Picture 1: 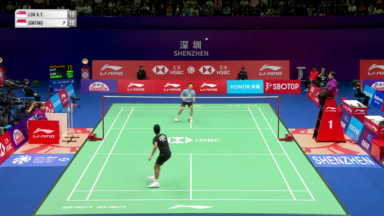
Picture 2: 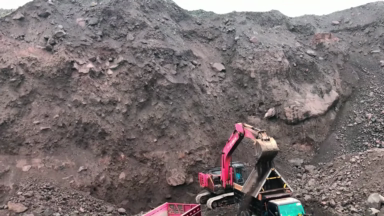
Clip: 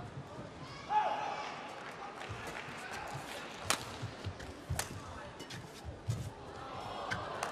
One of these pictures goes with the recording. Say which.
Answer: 1